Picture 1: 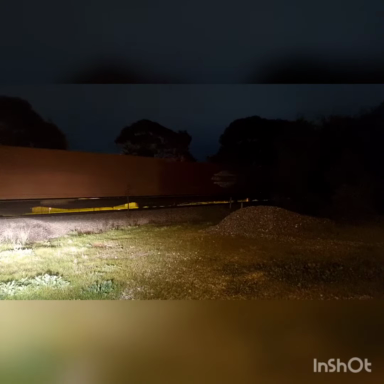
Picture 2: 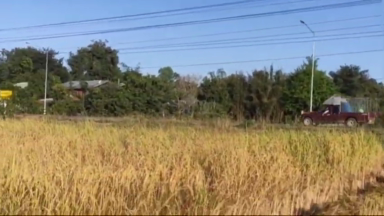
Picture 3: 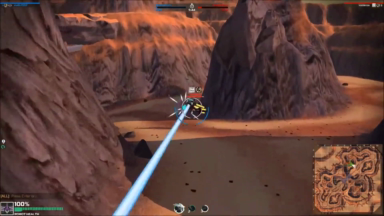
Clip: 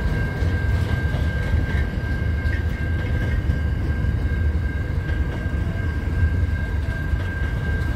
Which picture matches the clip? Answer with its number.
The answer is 1